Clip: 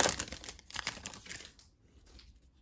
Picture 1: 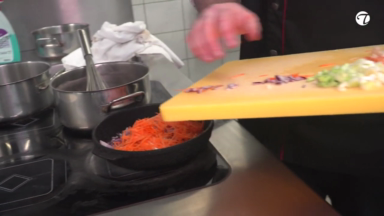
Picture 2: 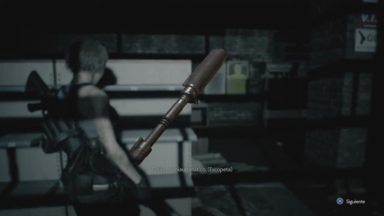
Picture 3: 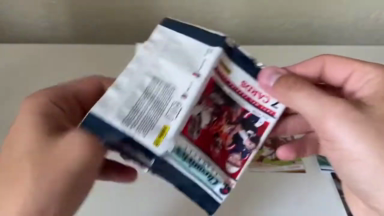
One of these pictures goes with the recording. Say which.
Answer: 3